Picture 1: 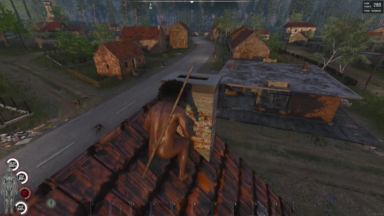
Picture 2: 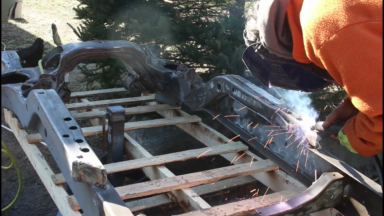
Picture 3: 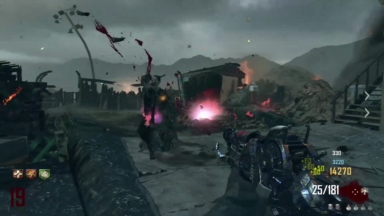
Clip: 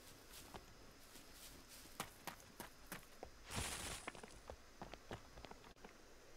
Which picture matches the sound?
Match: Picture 1